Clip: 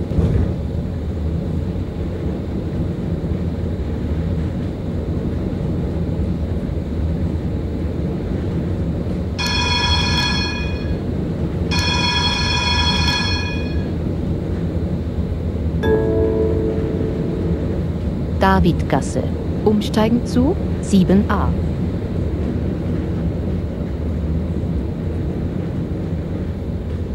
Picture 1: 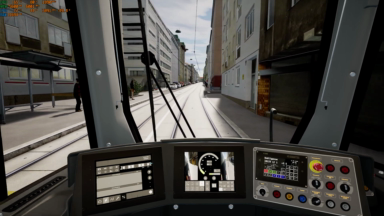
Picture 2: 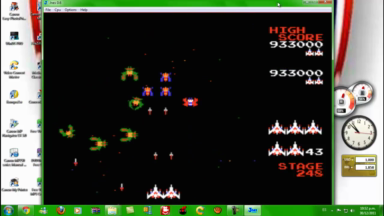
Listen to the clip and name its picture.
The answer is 1